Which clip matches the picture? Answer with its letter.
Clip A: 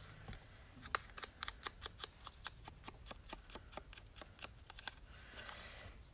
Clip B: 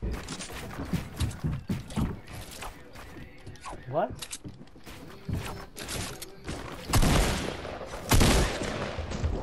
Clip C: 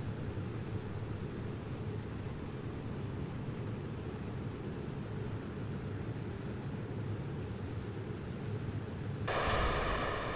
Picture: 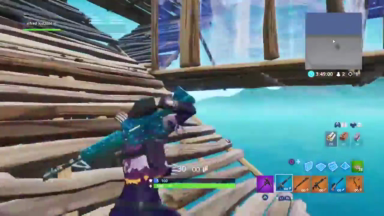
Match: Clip B